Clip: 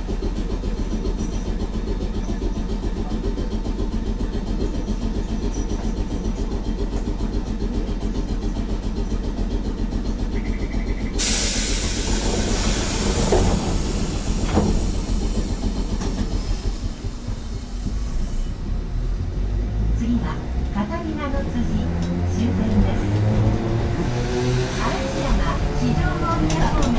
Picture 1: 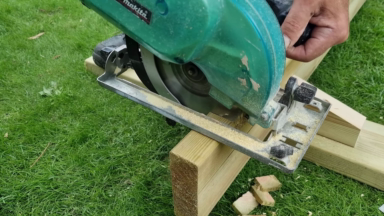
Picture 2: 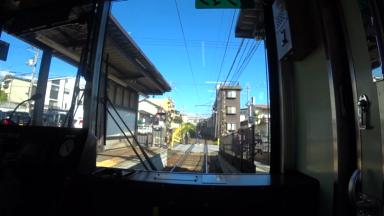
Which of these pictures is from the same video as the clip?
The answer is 2